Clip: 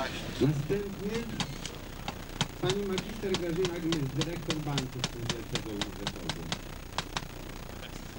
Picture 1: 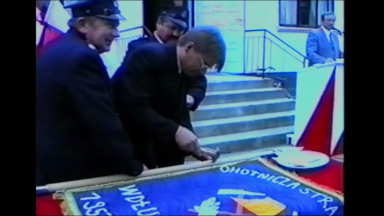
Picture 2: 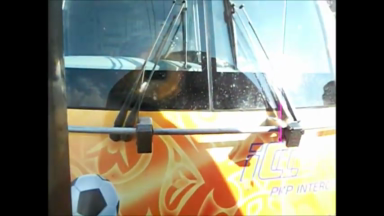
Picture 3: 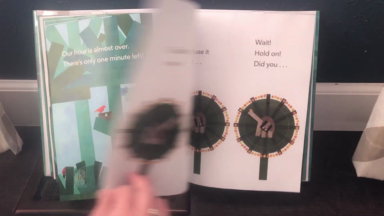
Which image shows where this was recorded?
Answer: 1